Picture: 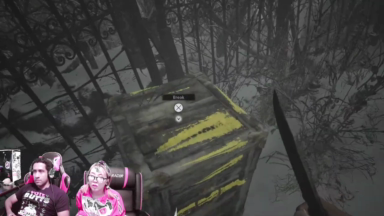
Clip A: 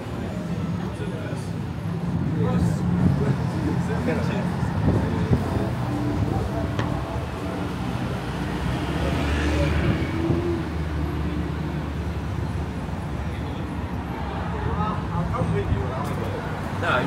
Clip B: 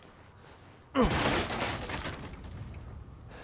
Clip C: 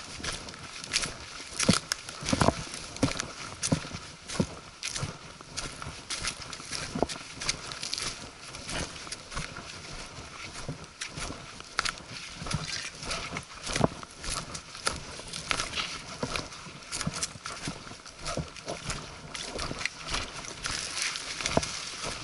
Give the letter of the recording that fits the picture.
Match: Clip B